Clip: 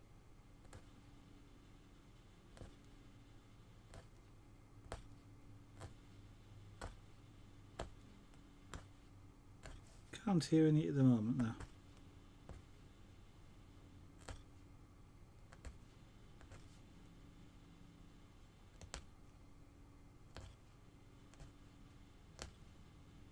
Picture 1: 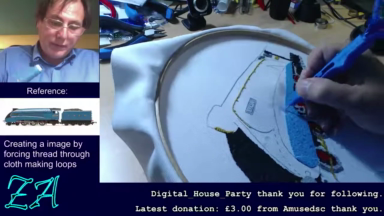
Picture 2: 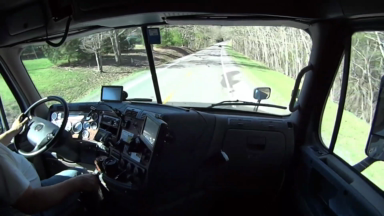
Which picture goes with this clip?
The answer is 1